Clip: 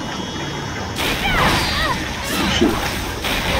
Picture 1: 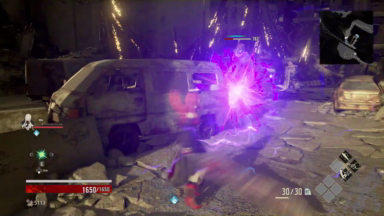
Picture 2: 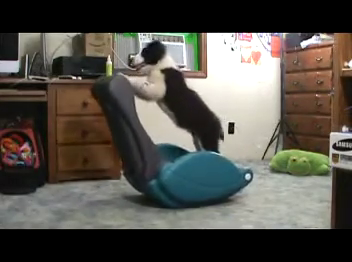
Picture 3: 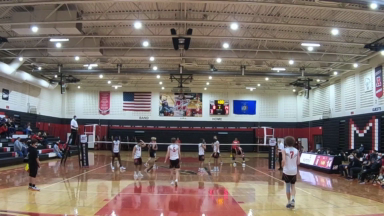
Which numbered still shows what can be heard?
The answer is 1